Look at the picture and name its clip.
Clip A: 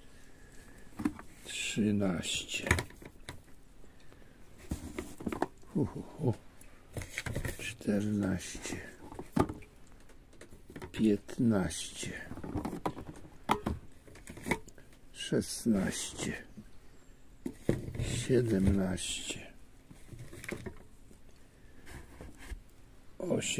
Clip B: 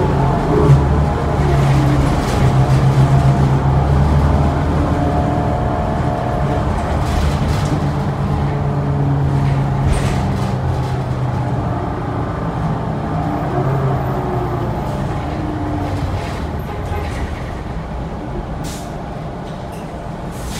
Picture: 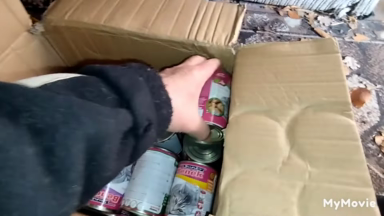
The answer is A